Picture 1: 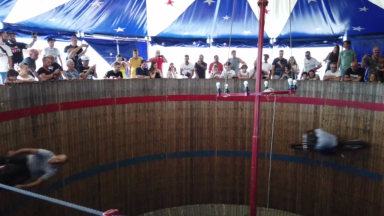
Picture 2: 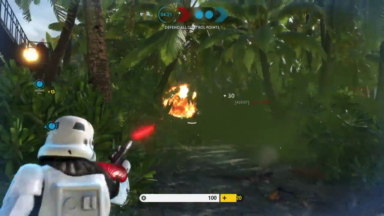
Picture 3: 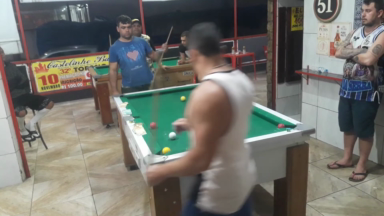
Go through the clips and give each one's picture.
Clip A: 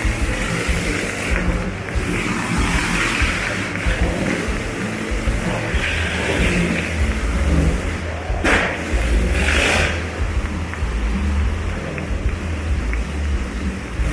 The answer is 1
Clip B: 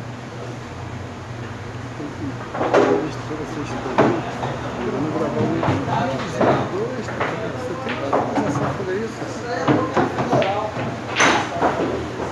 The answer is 3